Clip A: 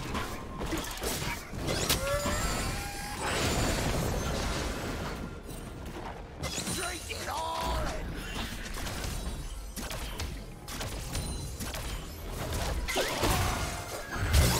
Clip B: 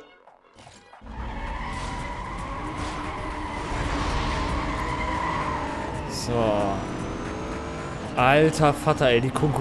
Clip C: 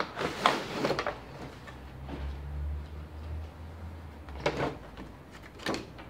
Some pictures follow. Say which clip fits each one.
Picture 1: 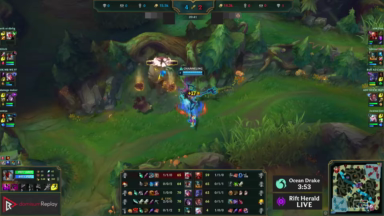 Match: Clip A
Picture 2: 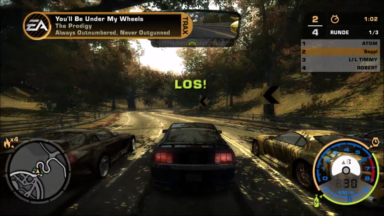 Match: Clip B